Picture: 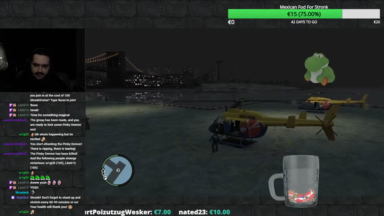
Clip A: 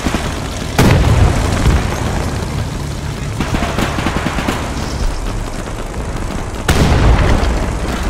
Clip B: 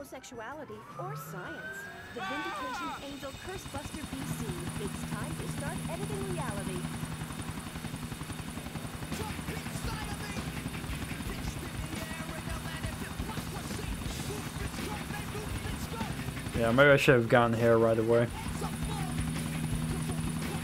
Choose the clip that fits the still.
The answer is B